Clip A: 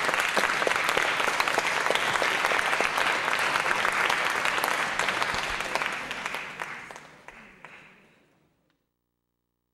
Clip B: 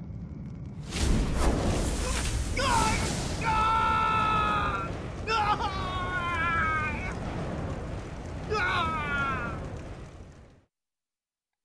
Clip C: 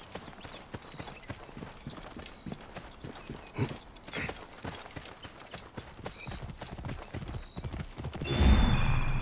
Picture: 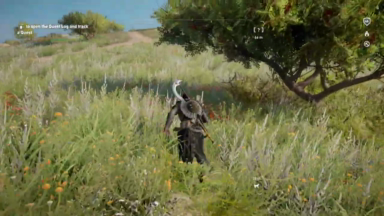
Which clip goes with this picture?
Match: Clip C